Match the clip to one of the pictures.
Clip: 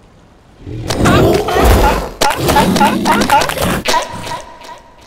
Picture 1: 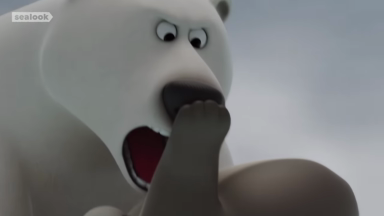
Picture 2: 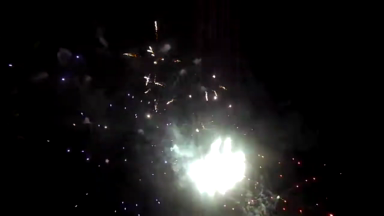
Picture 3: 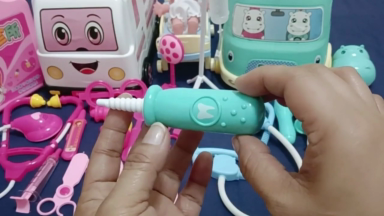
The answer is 1